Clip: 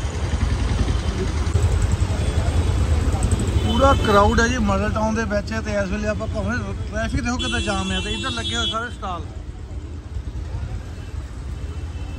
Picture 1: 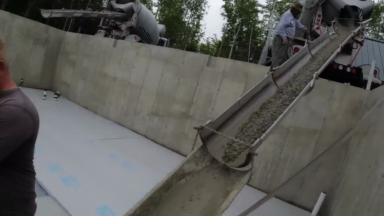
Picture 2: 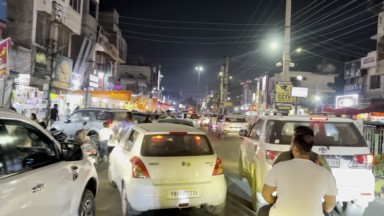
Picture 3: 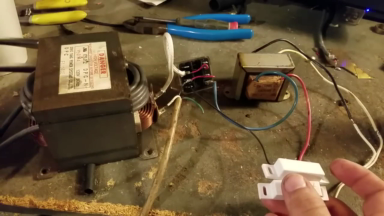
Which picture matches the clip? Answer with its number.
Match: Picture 2